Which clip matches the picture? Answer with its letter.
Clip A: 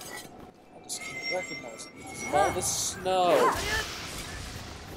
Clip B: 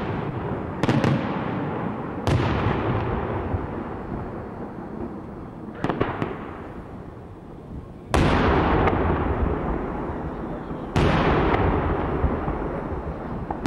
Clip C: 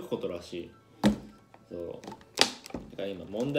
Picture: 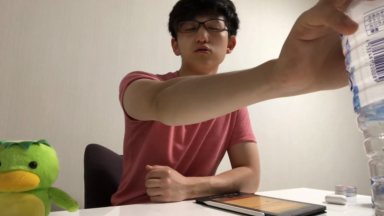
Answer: C